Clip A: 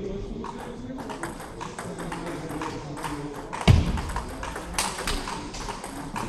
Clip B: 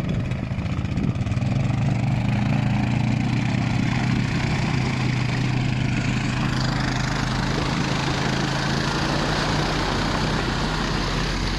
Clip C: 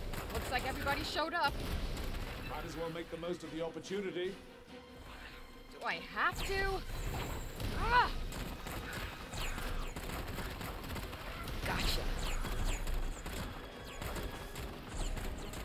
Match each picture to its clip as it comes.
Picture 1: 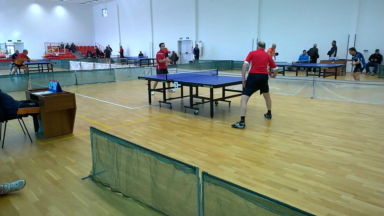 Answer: A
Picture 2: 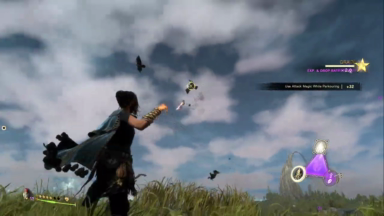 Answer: C